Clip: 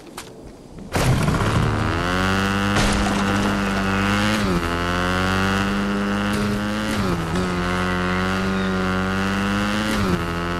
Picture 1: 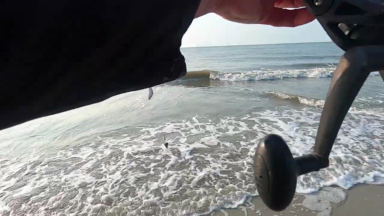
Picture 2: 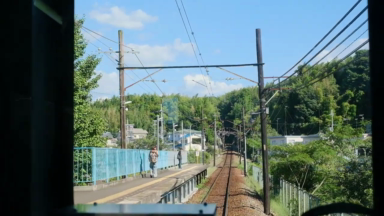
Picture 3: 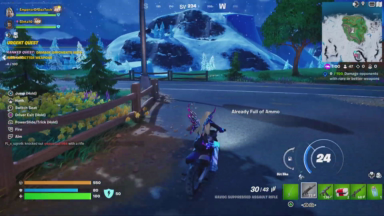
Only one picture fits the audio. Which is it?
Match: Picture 3